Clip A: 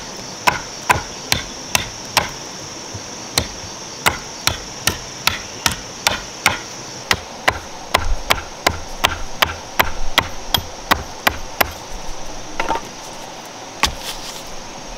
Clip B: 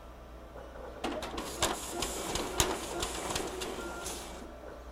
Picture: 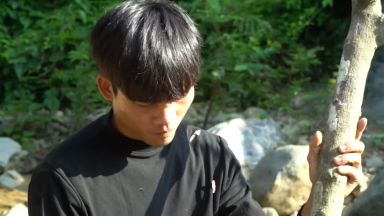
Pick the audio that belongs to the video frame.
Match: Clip A